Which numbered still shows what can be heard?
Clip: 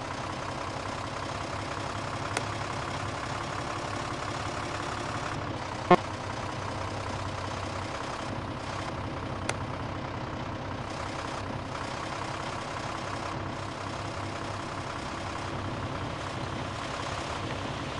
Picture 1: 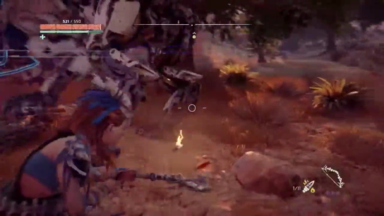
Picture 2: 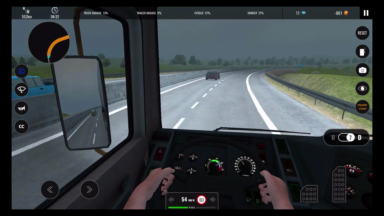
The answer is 2